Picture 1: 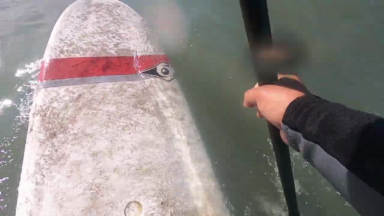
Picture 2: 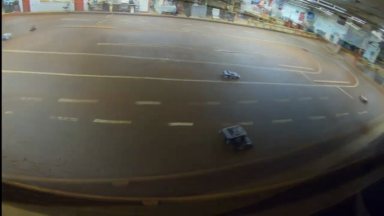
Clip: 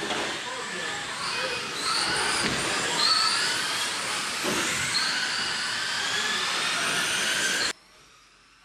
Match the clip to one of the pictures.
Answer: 2